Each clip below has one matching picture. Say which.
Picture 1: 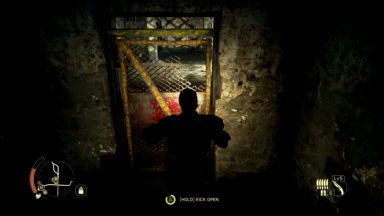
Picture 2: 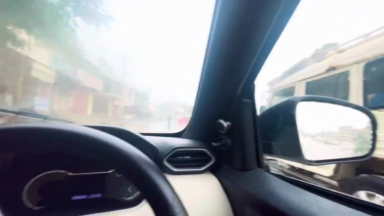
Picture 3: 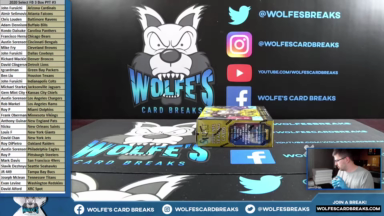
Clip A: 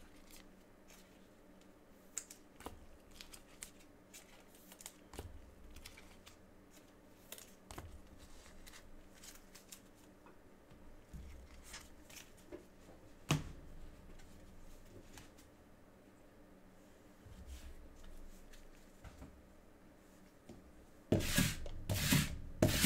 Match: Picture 3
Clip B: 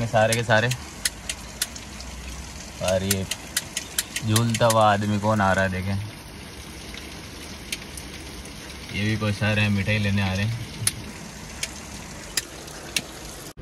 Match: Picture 2